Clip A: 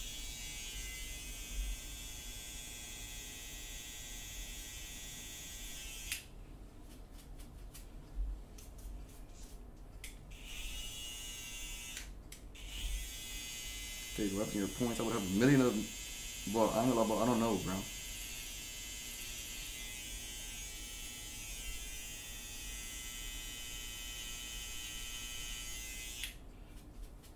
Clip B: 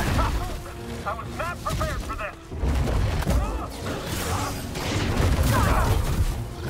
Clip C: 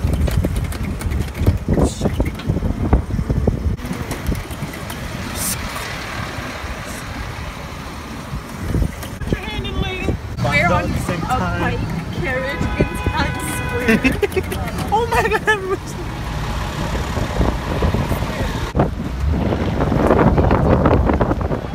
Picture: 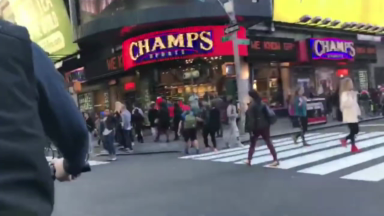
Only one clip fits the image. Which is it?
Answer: C